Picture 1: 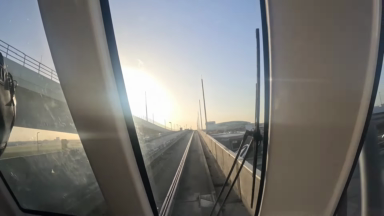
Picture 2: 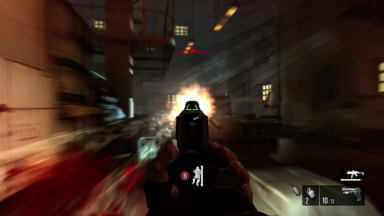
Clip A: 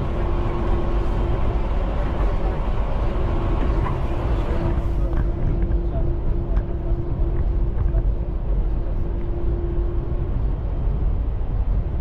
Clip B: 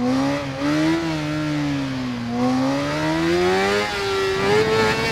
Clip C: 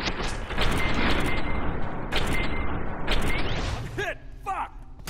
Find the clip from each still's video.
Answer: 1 A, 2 C